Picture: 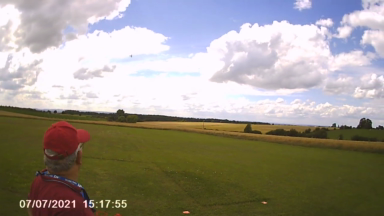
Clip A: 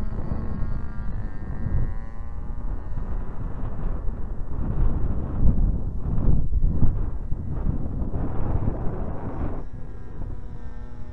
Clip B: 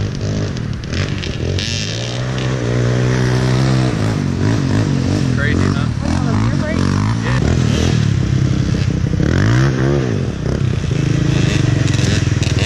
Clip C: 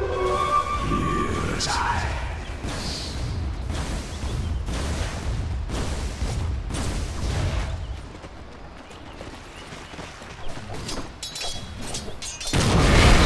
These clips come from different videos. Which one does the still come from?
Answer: A